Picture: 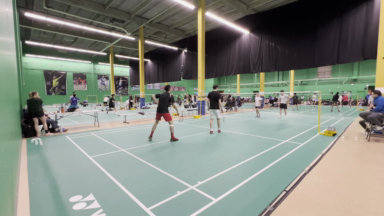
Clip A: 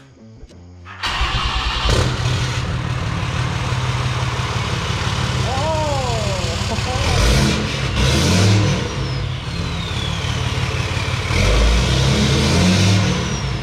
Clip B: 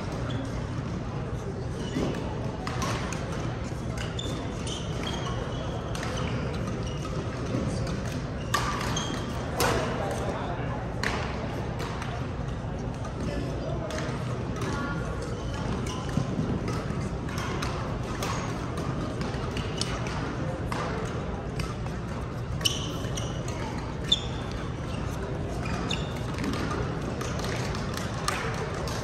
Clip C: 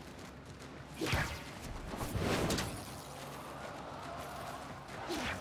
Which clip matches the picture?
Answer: B